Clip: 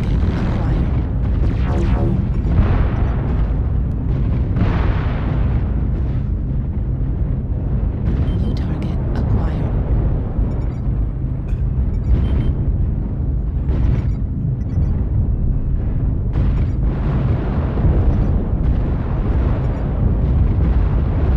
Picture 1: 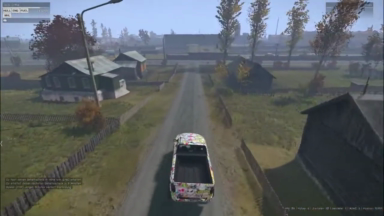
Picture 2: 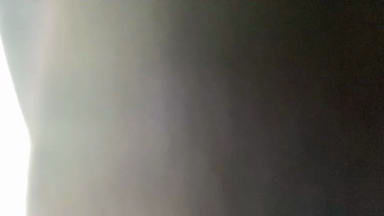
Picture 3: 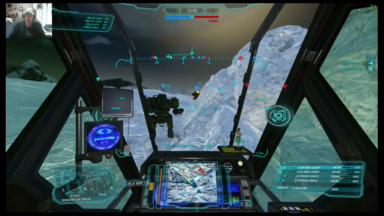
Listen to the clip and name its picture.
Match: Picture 3